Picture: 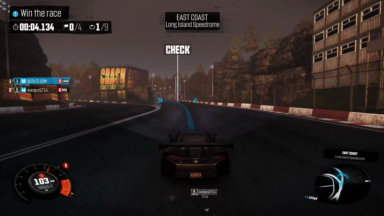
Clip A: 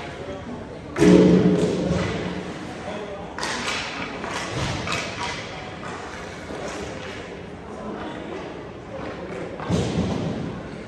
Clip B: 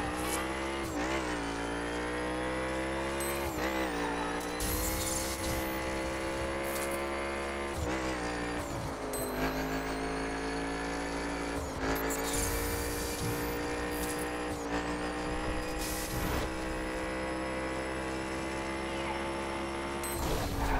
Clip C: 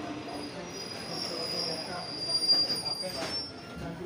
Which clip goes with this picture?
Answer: B